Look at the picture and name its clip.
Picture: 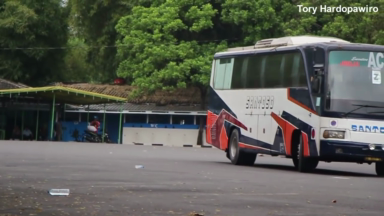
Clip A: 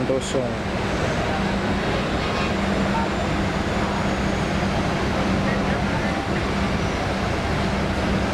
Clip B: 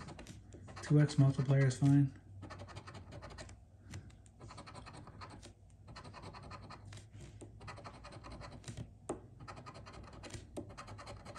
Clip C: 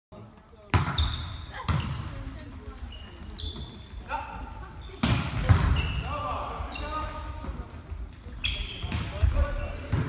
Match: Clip A